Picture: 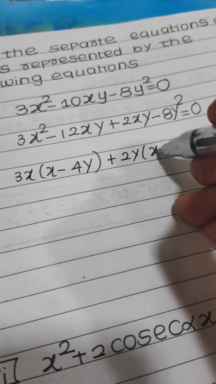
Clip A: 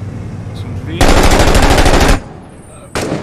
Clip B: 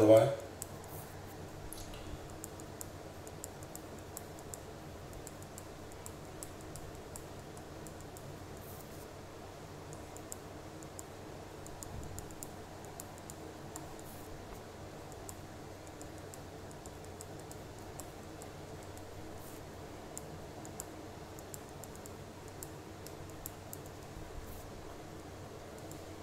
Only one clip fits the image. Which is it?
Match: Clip B